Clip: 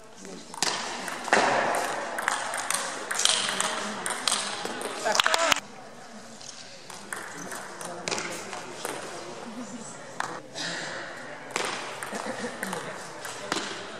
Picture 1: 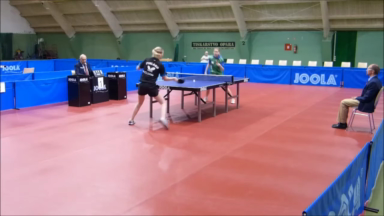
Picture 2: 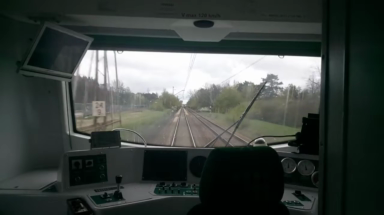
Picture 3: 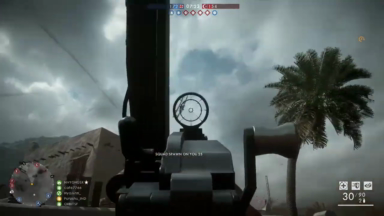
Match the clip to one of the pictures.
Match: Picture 1